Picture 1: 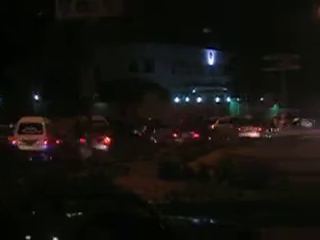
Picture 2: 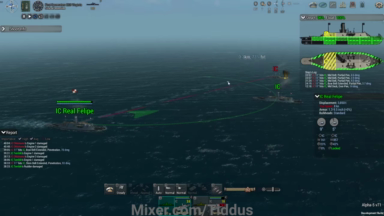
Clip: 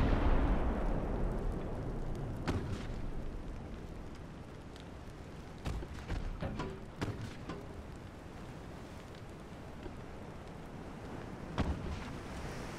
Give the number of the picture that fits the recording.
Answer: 2